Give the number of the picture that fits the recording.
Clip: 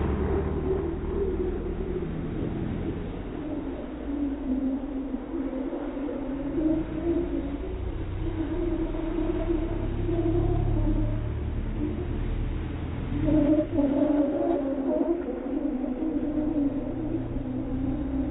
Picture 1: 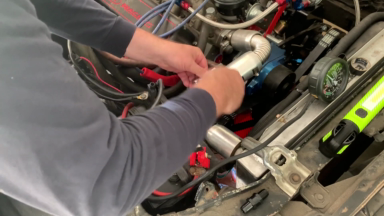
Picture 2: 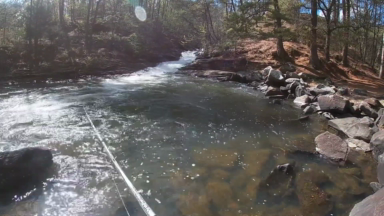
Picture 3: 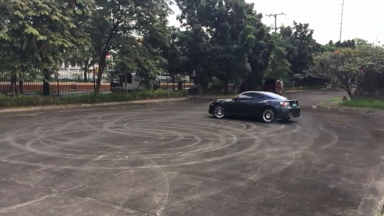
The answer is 3